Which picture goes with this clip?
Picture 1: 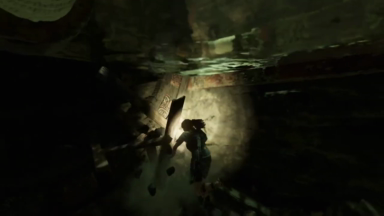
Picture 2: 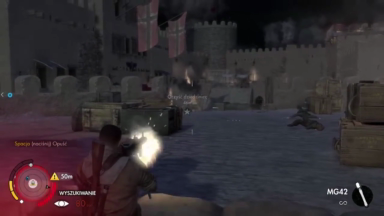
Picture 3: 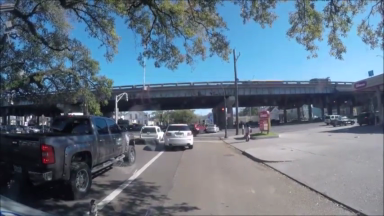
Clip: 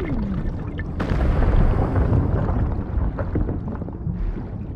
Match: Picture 1